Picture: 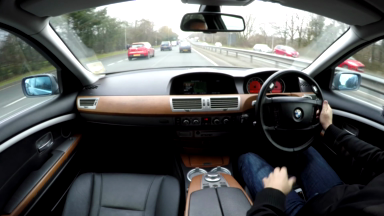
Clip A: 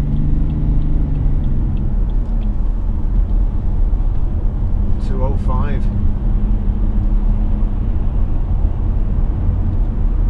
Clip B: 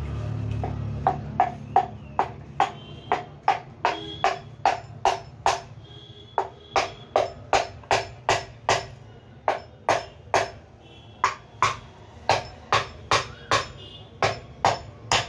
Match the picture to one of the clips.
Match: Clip A